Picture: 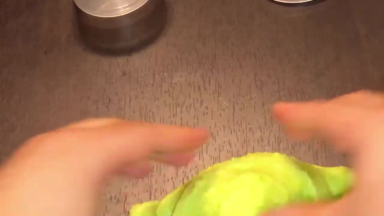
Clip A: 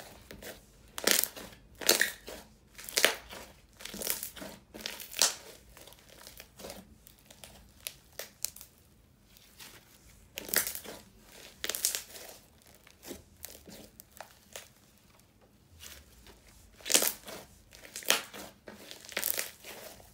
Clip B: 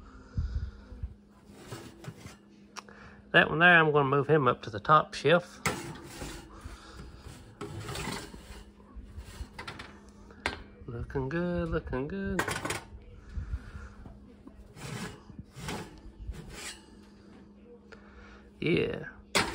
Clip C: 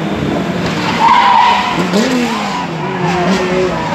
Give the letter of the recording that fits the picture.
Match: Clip A